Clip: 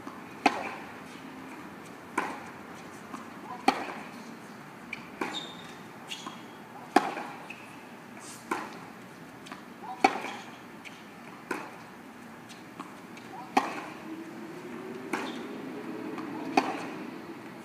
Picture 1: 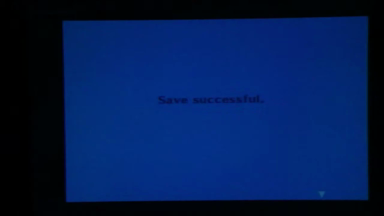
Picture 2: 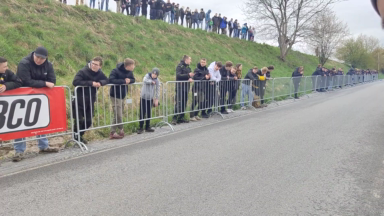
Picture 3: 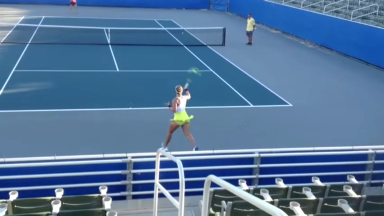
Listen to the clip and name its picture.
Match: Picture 3